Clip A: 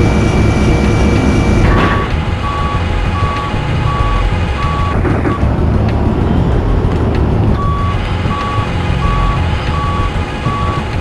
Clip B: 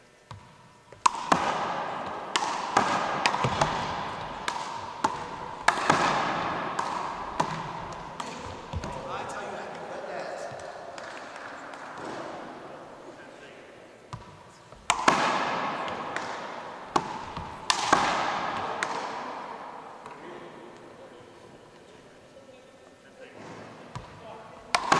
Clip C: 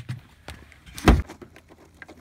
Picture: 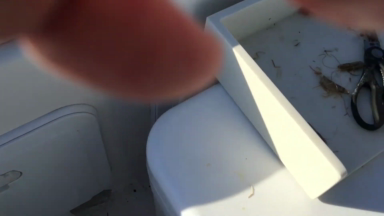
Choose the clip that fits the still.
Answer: C